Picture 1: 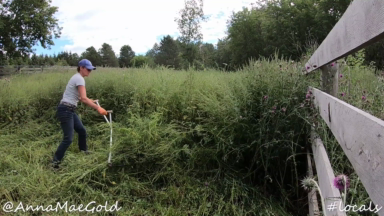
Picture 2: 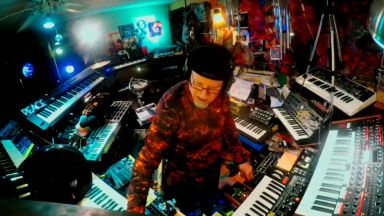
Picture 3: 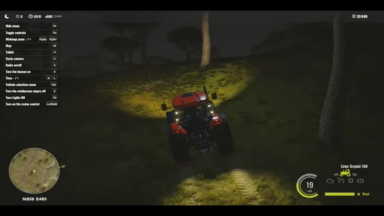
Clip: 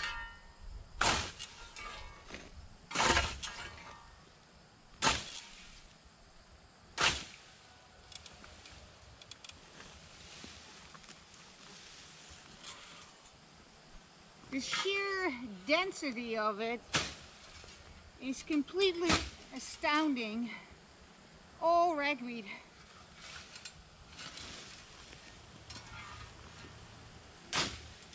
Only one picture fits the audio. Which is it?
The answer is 1